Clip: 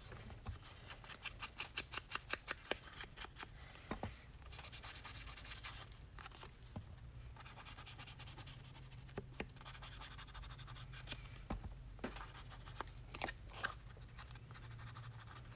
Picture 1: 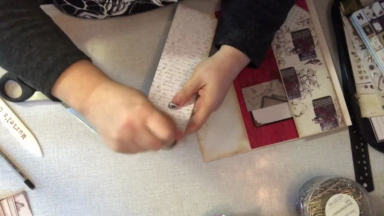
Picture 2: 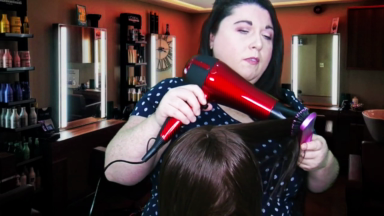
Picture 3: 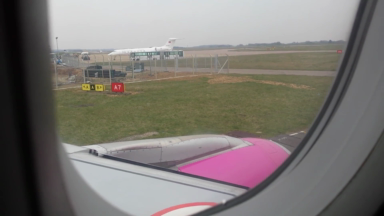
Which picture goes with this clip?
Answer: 1